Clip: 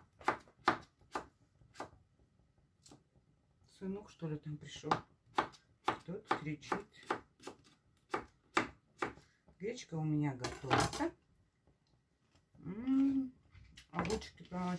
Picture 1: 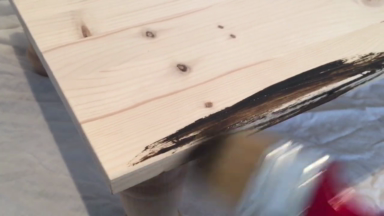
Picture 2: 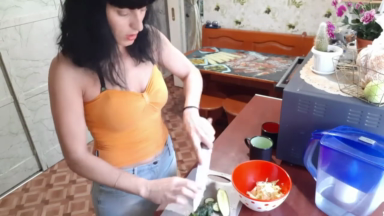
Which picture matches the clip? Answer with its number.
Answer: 2